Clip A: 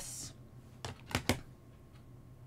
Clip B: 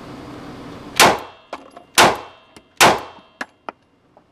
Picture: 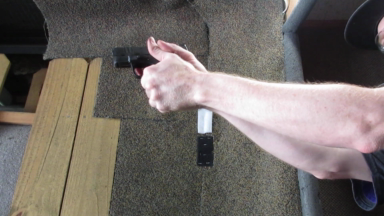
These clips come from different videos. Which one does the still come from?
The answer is B